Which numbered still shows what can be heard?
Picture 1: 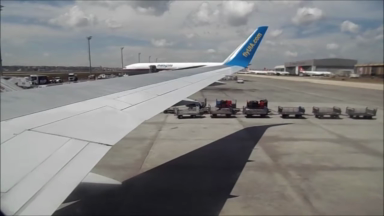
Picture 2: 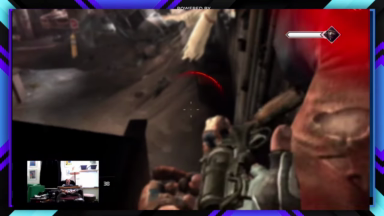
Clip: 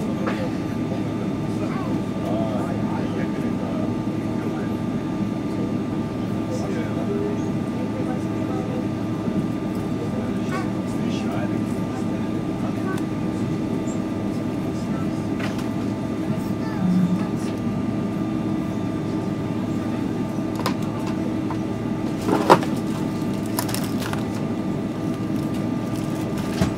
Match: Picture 1